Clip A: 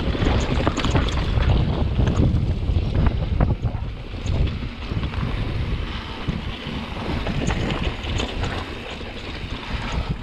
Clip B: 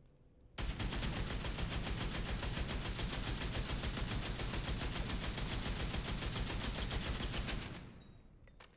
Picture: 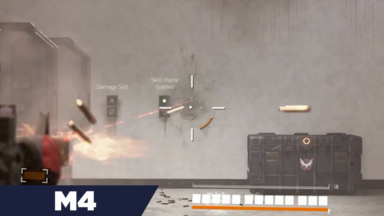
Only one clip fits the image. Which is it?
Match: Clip B